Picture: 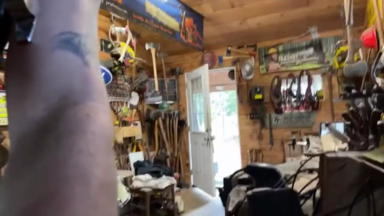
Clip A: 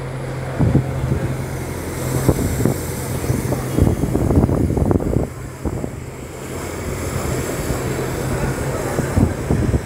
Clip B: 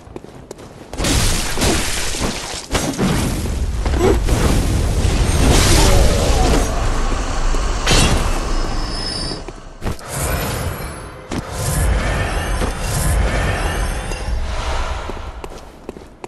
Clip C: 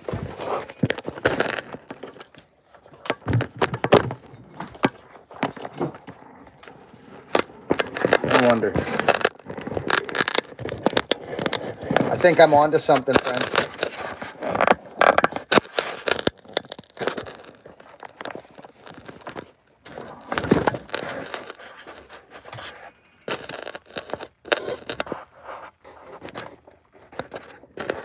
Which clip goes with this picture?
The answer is C